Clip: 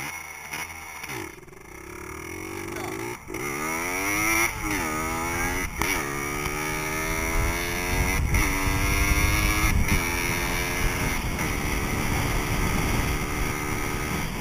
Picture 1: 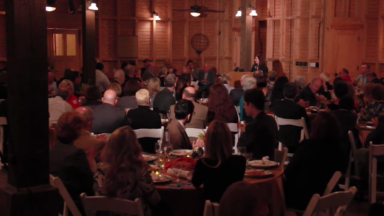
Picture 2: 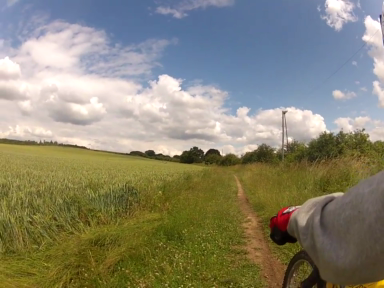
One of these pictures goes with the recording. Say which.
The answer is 2